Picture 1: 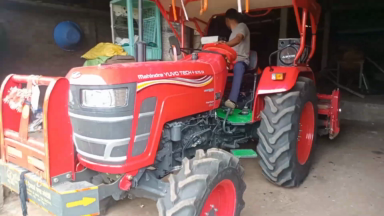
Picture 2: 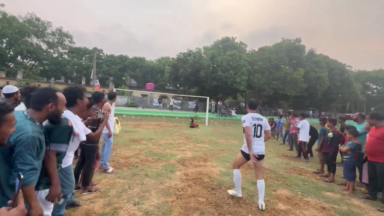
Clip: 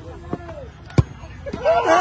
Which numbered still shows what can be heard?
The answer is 2